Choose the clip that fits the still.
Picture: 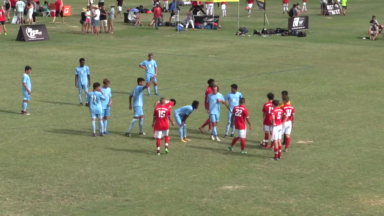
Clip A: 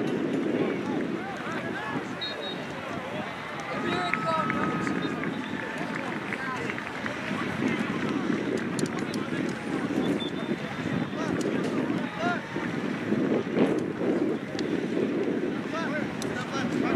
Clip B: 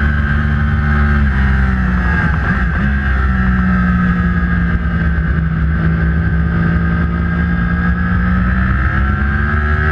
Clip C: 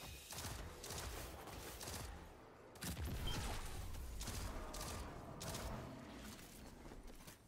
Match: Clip A